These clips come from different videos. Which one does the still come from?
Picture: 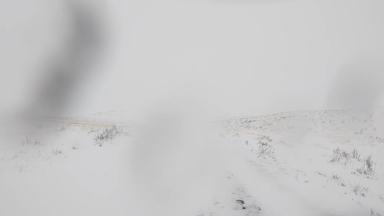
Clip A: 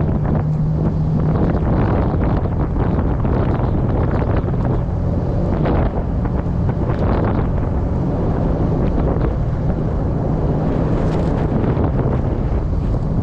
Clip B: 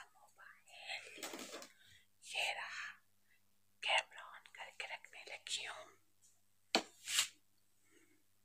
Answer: A